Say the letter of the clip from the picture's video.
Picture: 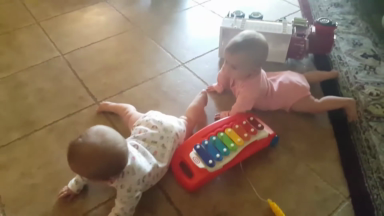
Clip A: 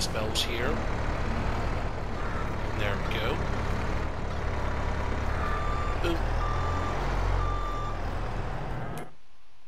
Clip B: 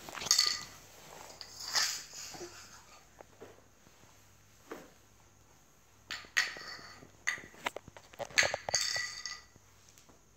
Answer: B